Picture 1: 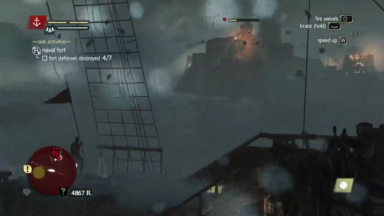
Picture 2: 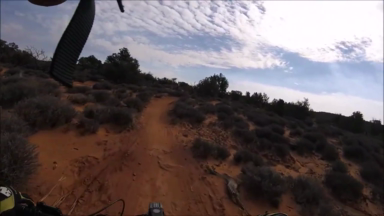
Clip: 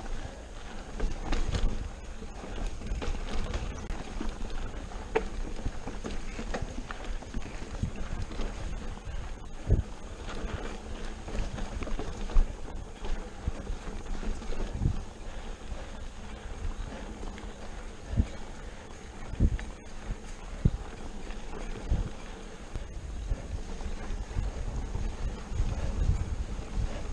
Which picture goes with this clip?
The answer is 2